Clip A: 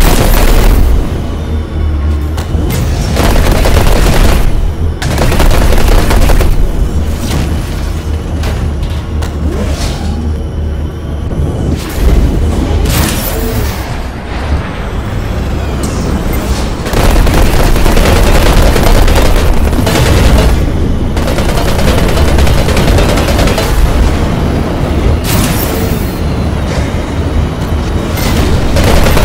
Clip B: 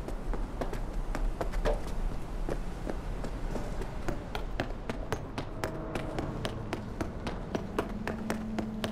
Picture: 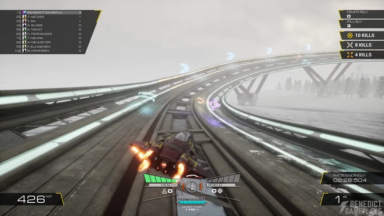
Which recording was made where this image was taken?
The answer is A